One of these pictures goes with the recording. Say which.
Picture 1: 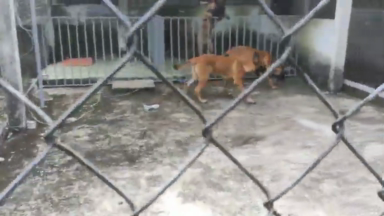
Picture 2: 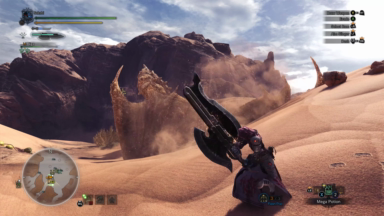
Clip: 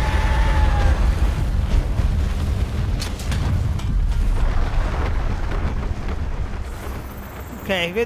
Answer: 2